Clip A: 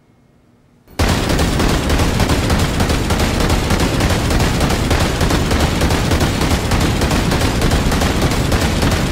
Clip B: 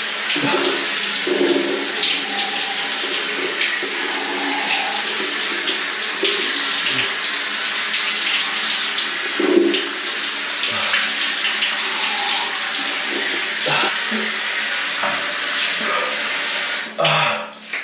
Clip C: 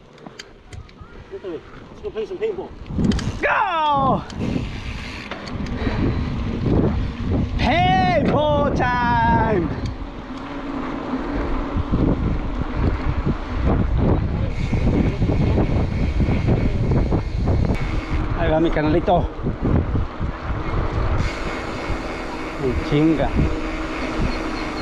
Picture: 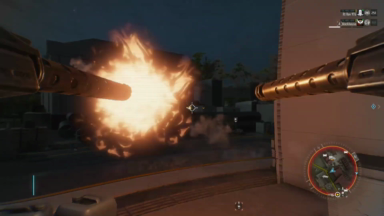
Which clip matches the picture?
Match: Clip A